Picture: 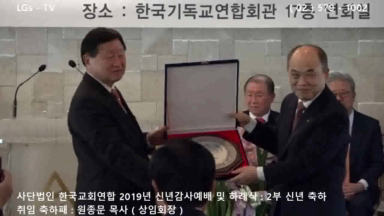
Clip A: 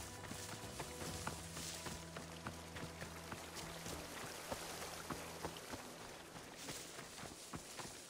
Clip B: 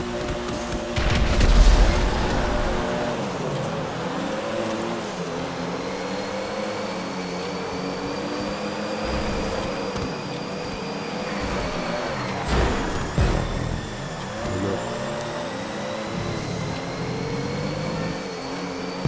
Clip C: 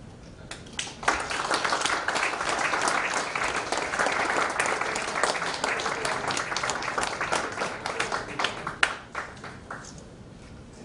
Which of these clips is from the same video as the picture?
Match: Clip C